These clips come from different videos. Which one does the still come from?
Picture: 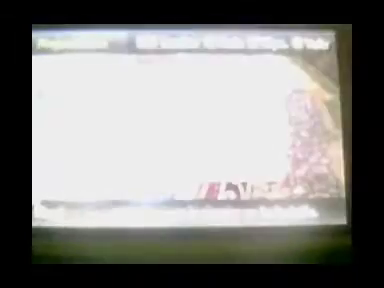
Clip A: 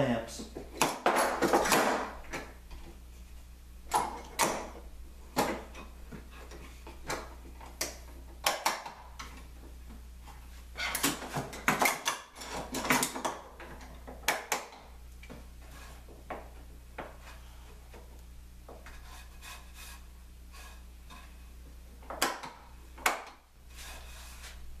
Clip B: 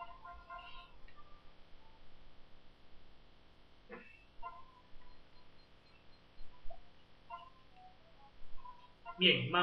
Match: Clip B